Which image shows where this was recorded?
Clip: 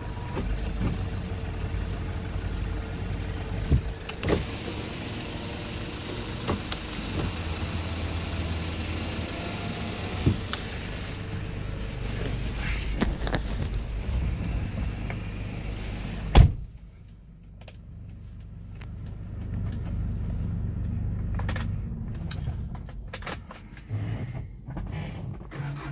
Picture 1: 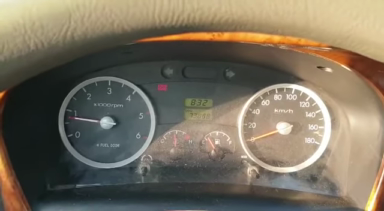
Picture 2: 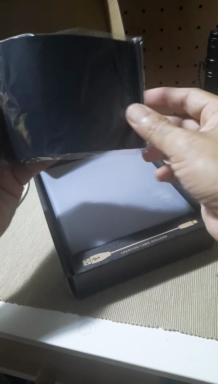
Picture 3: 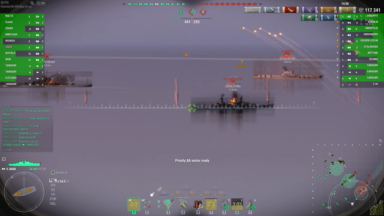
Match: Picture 1